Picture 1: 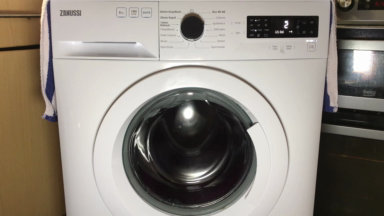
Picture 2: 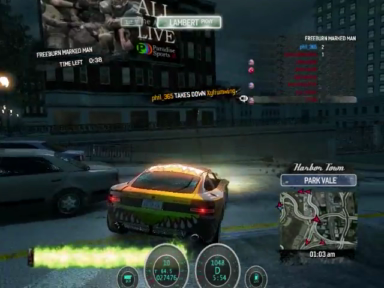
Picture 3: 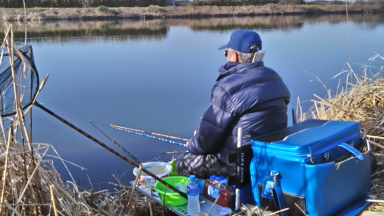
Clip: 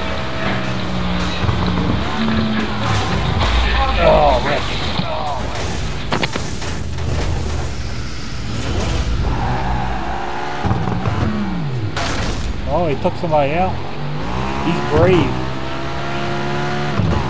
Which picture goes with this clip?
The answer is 2